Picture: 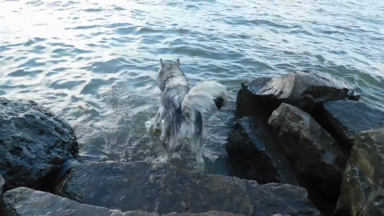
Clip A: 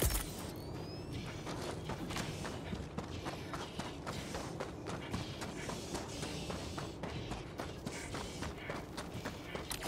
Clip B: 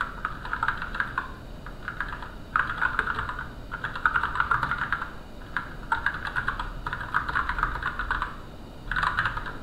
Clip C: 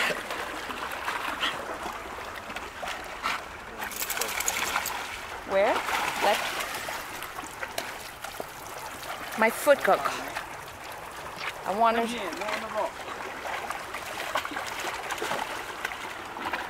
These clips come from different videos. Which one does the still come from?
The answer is C